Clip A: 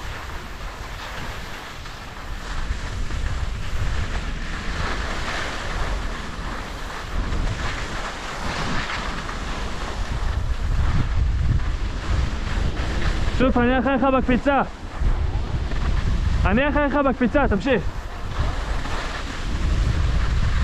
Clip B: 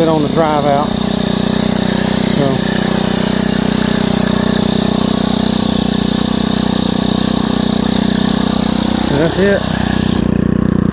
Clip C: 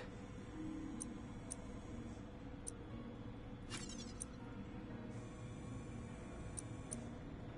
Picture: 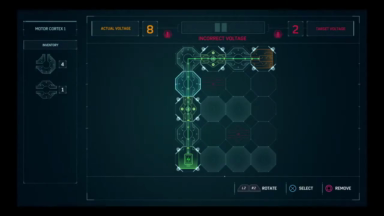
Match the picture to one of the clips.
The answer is C